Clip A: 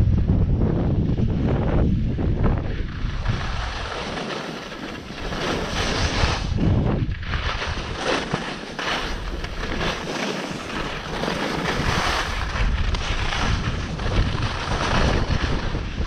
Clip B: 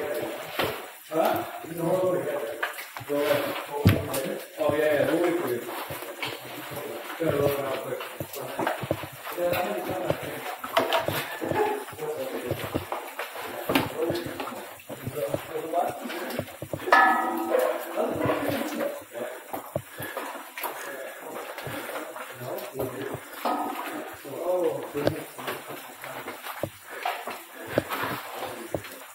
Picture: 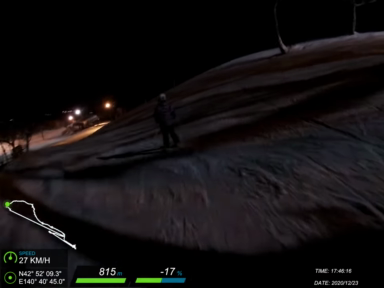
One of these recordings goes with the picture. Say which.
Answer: A